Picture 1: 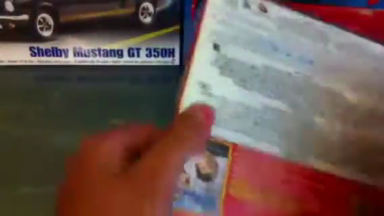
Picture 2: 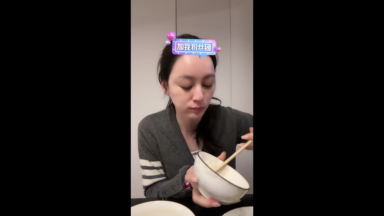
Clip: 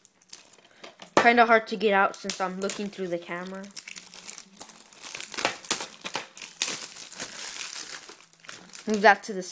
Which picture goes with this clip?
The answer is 1